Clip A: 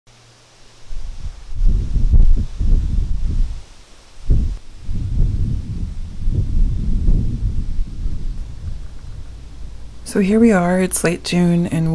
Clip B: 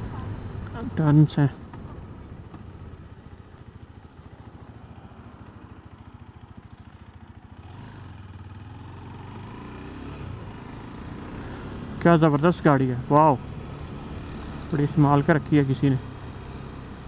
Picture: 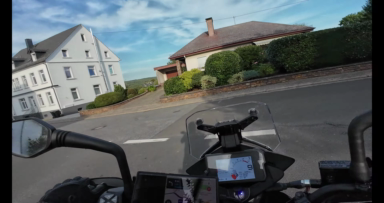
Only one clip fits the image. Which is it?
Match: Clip B